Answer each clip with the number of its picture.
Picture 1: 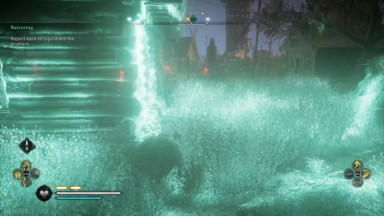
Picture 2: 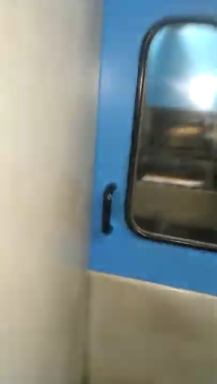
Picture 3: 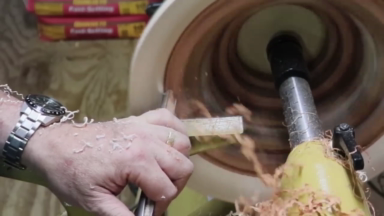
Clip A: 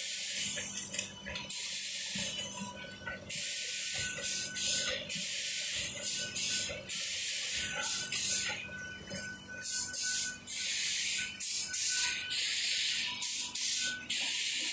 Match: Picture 2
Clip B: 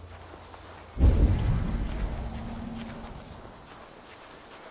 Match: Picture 1